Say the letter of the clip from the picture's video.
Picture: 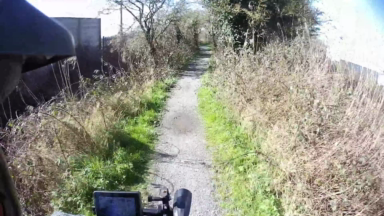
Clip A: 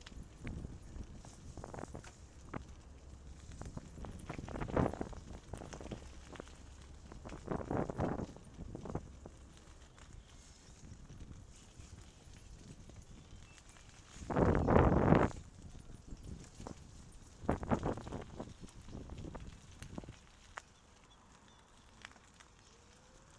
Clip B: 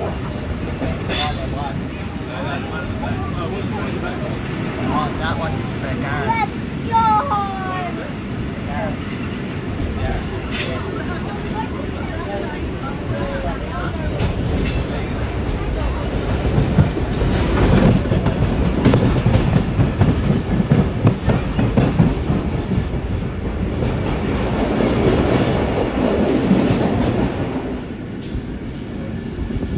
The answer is A